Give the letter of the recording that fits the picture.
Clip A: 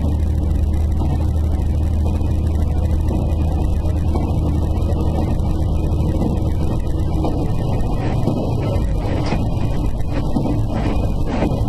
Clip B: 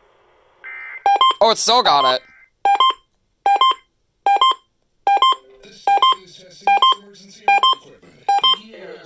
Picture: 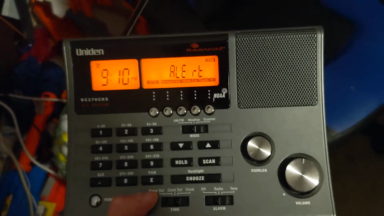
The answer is B